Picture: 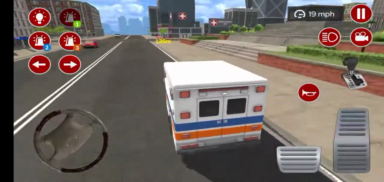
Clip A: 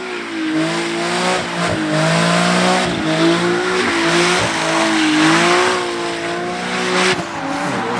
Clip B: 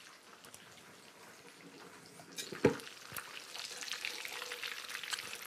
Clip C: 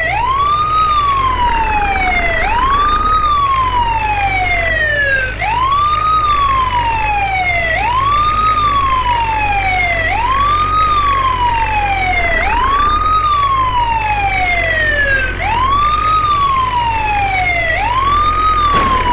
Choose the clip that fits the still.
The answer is C